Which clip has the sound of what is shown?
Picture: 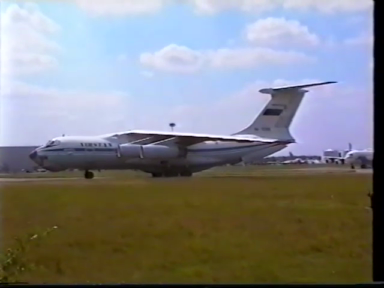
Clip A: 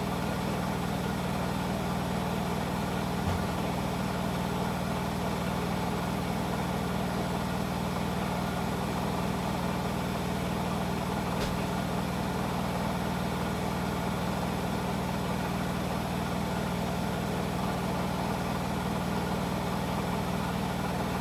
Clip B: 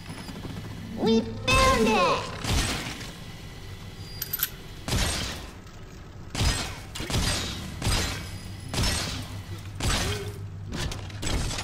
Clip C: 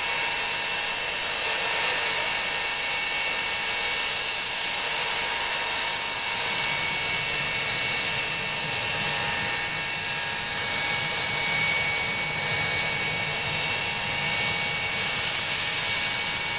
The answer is C